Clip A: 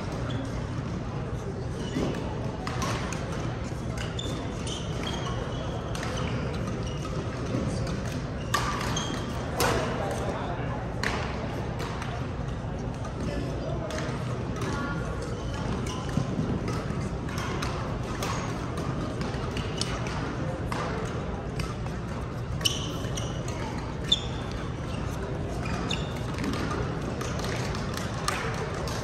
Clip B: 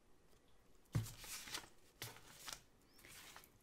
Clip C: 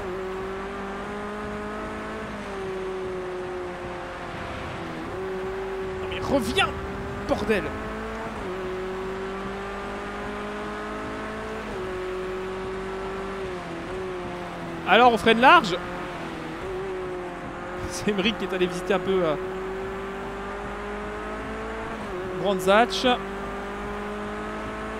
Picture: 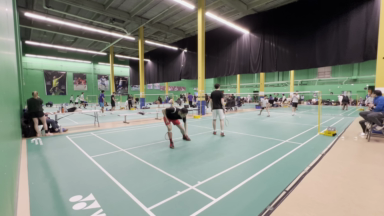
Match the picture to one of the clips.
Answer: A